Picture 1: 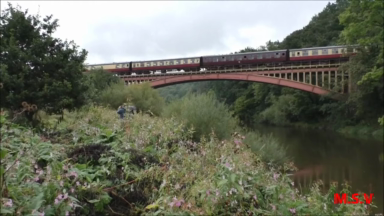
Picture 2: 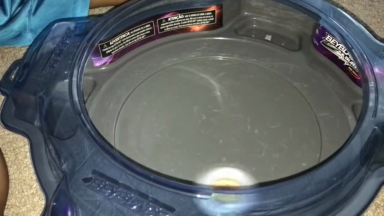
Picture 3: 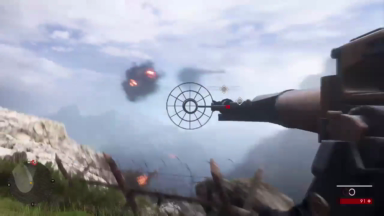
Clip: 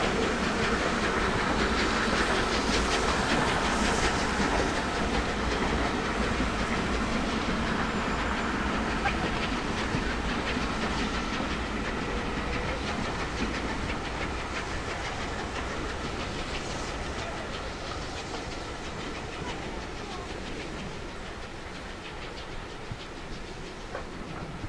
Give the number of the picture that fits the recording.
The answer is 1